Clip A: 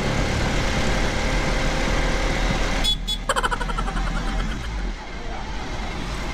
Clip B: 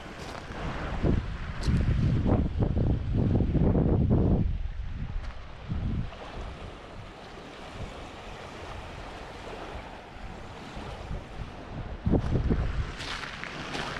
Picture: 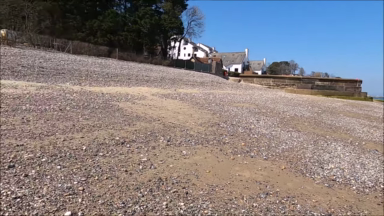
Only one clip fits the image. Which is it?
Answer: B